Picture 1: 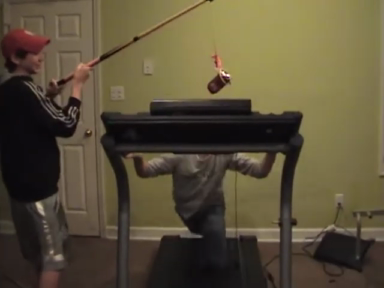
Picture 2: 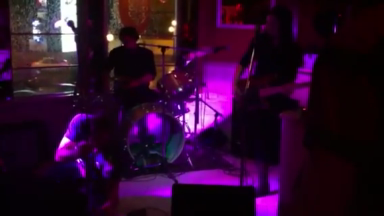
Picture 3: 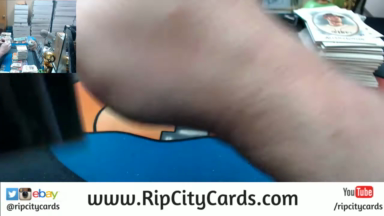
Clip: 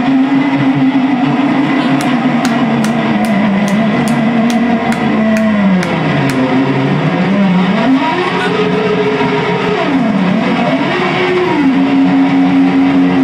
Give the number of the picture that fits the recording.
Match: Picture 2